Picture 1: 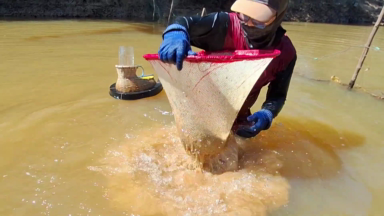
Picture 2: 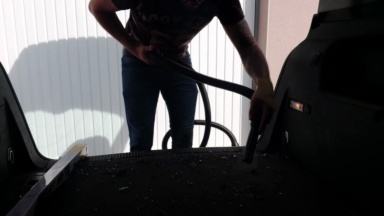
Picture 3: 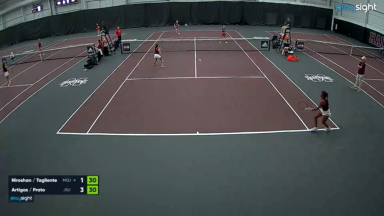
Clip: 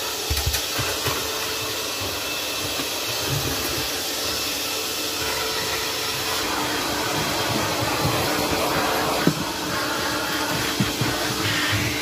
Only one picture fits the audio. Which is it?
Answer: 2